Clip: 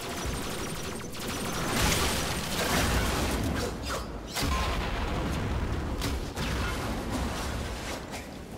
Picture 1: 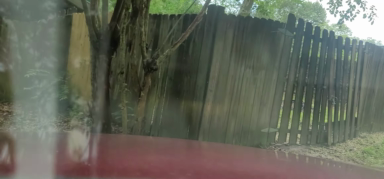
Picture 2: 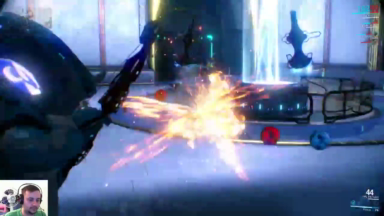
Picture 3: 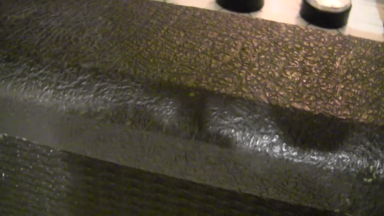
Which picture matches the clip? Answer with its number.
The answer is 2